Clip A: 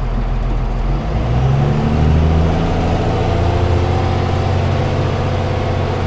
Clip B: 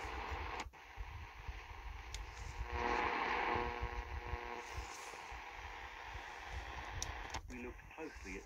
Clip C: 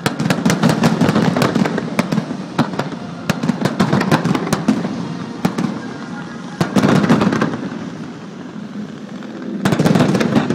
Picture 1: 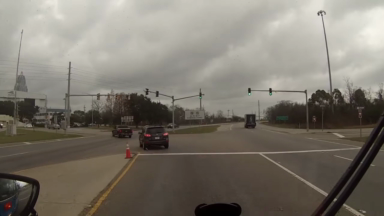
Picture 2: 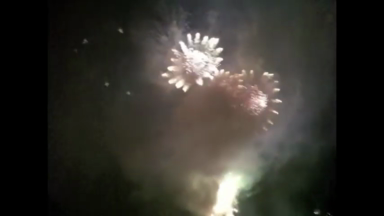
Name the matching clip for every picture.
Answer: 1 A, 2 C